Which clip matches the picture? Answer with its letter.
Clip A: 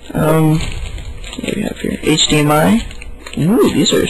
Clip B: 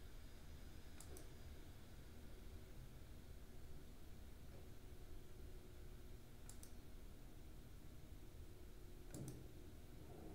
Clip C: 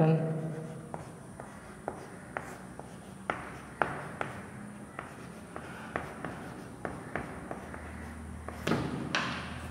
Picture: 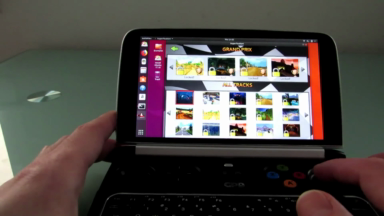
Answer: B